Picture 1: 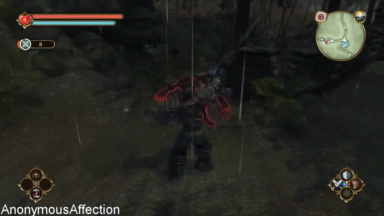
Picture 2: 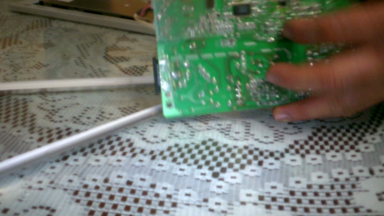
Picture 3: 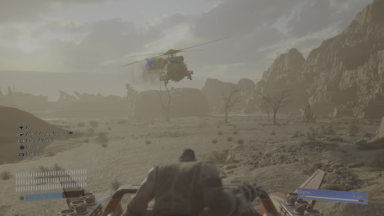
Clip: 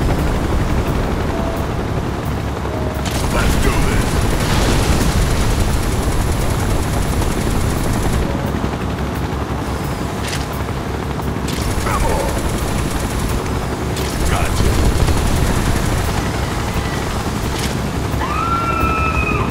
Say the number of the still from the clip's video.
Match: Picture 3